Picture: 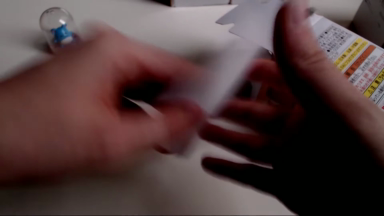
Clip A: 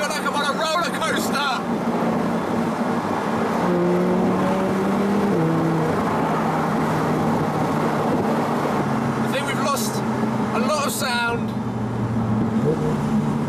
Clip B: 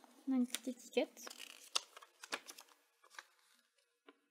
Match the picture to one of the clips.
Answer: B